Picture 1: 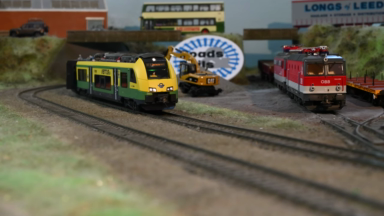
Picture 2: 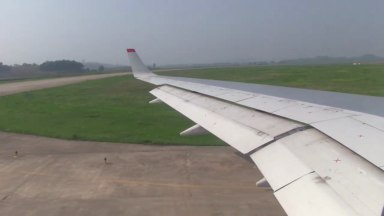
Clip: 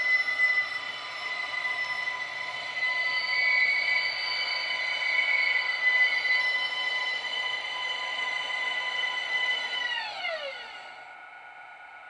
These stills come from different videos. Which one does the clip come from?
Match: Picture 1